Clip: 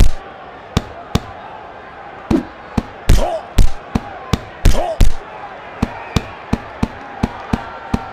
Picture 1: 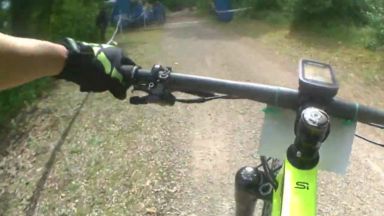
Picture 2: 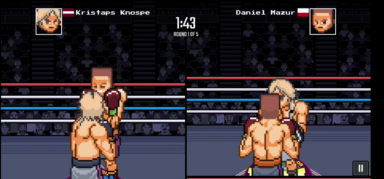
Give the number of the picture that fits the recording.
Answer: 2